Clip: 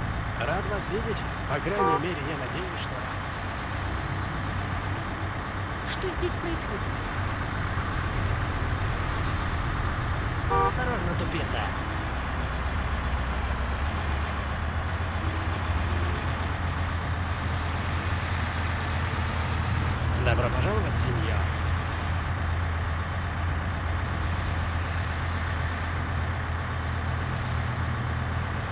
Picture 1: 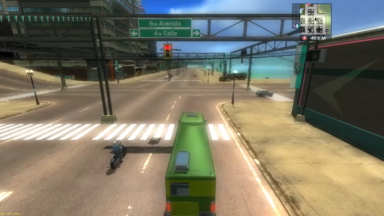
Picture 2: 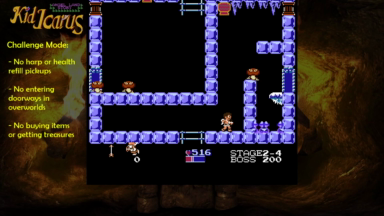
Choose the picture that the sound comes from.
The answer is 1